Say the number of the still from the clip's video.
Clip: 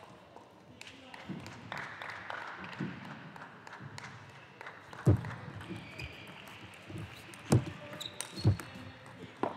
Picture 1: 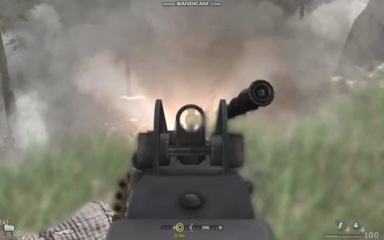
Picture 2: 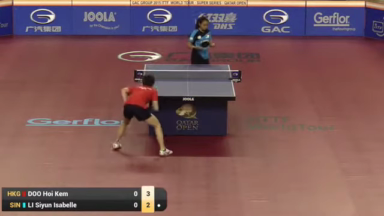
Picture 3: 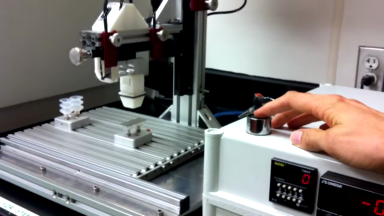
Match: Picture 2